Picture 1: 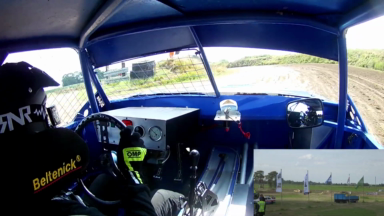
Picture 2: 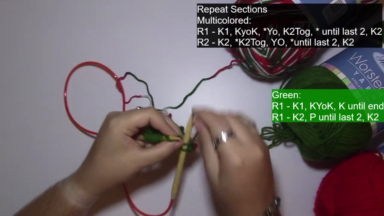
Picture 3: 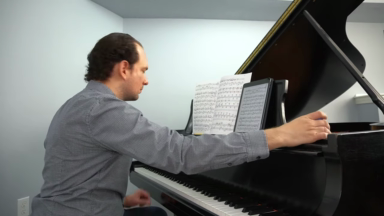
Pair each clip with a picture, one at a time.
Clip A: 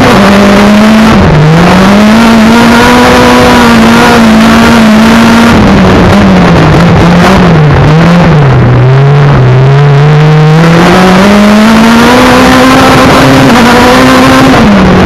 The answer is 1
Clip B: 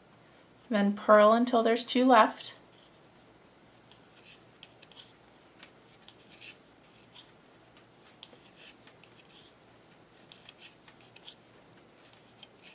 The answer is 2